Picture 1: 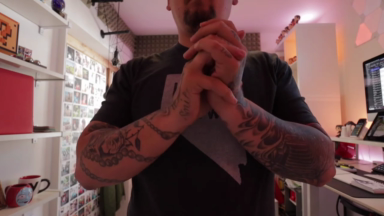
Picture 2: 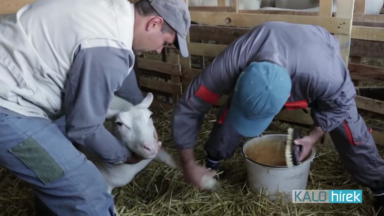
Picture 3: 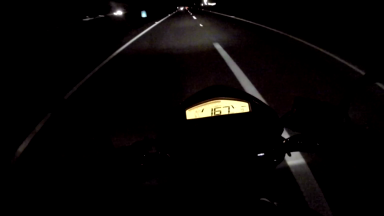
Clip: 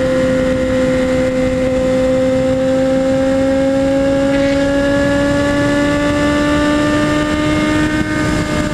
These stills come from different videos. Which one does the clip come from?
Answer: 3